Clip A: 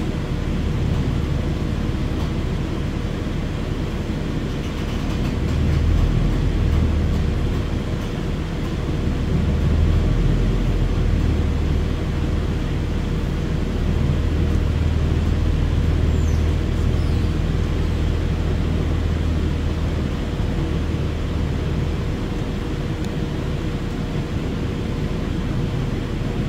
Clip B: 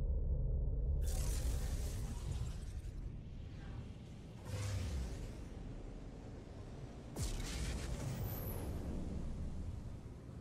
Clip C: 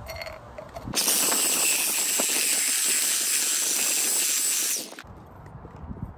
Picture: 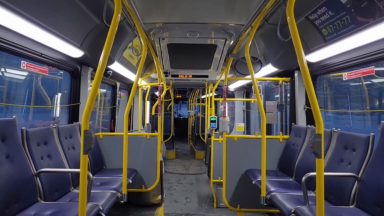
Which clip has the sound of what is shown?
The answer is A